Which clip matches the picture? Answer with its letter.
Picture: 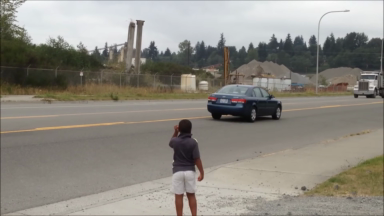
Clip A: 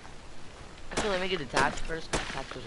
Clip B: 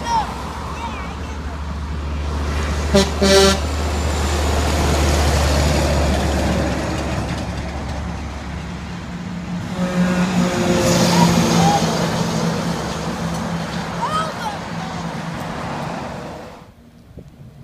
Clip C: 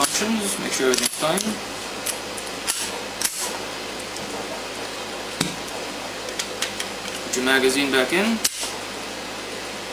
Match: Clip B